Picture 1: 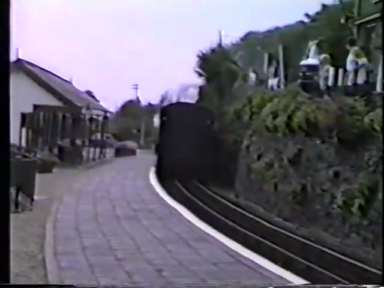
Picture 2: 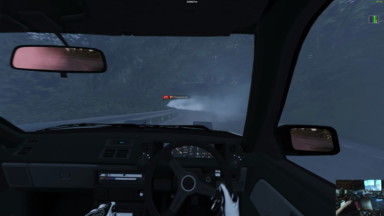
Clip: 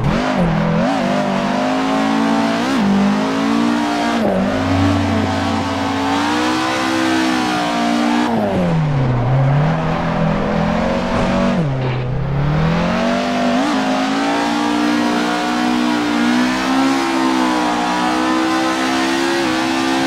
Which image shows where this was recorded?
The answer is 2